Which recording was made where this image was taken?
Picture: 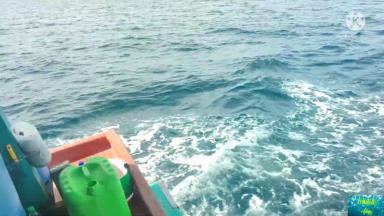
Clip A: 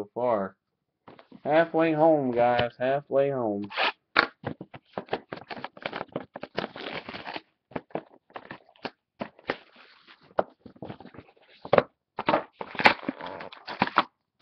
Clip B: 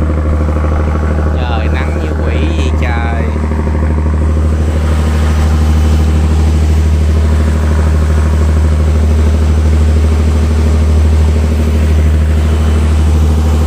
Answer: B